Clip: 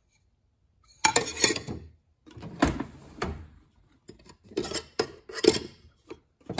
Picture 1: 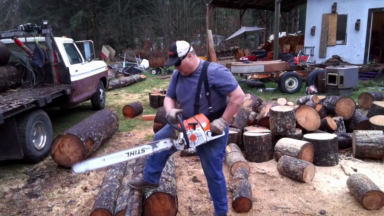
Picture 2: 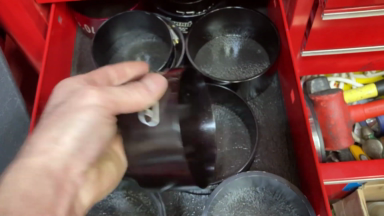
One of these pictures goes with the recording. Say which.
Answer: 2